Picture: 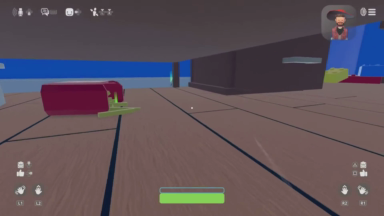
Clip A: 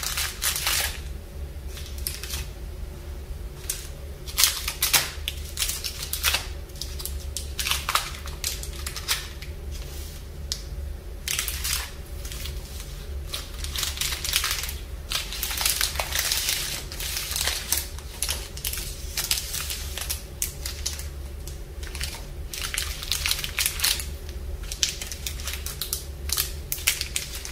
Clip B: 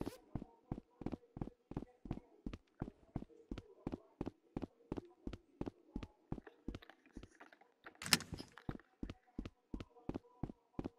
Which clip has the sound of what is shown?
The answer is B